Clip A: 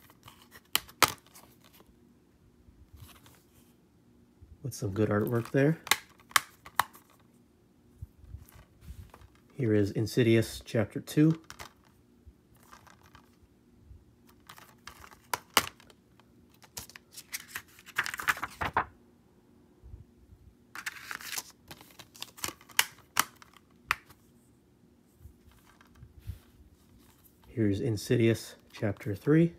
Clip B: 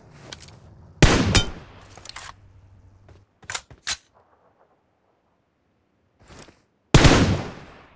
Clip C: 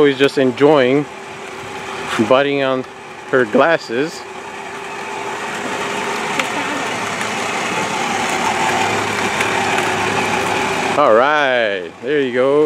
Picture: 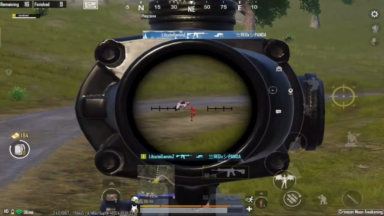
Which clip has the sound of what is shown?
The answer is B